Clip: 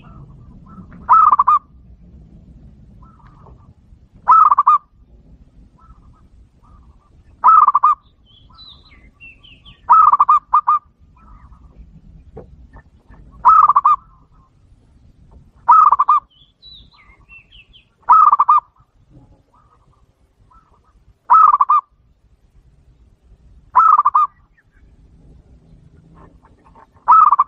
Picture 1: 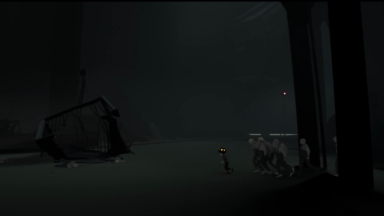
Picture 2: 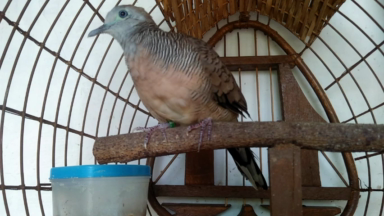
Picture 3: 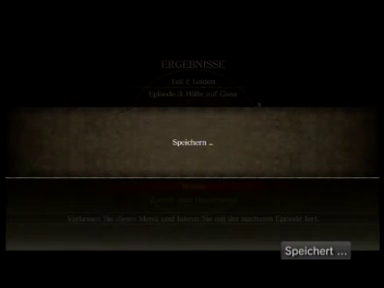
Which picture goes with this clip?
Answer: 2